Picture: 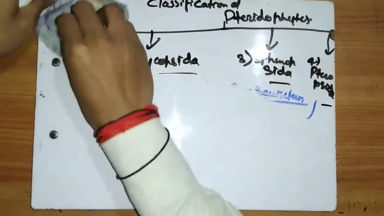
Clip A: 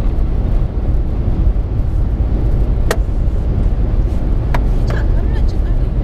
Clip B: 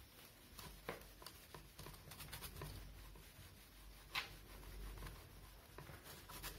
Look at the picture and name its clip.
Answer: B